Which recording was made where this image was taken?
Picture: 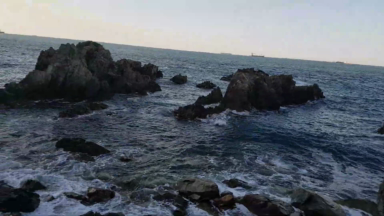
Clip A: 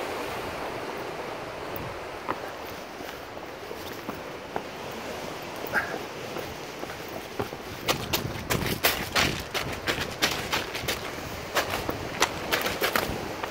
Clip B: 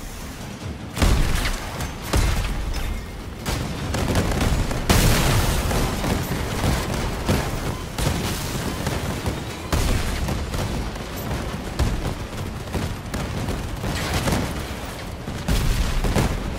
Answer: A